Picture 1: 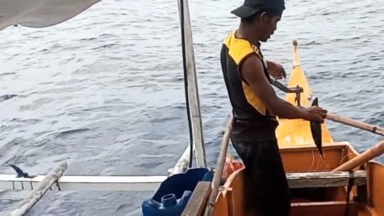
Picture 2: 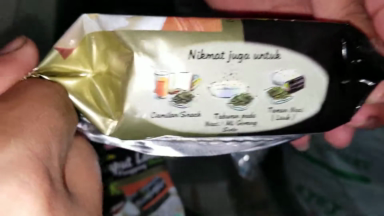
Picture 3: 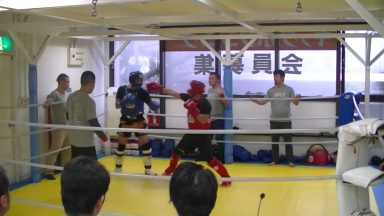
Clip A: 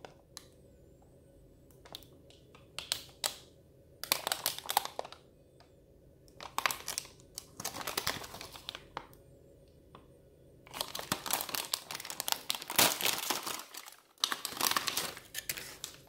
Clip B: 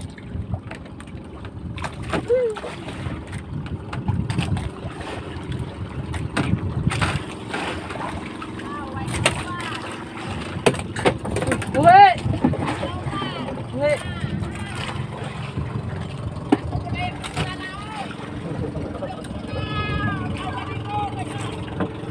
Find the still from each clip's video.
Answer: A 2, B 1